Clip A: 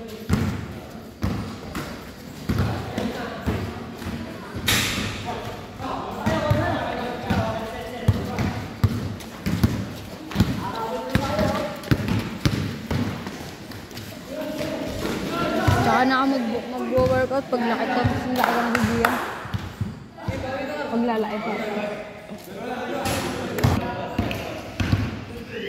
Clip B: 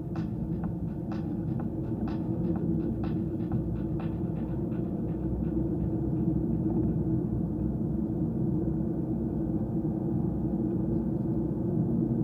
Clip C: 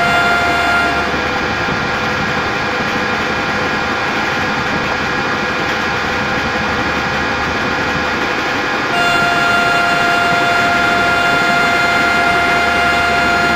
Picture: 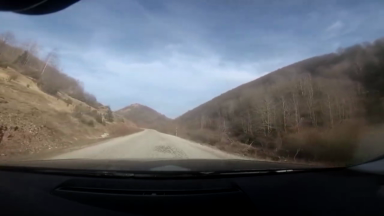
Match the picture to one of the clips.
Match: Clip B